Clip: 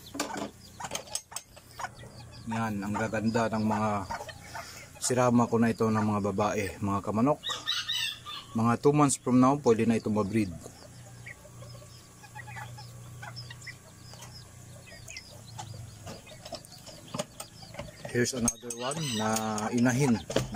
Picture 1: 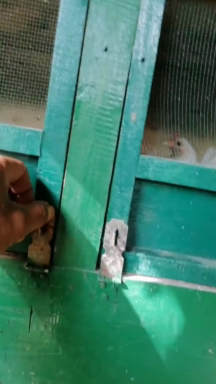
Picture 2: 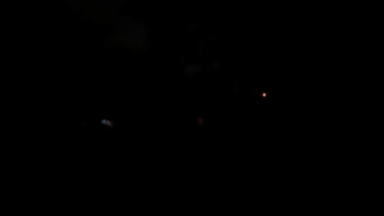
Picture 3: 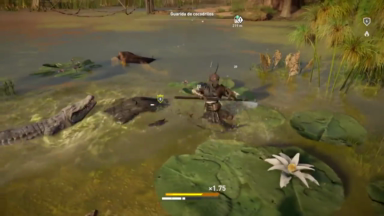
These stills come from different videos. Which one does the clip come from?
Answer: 1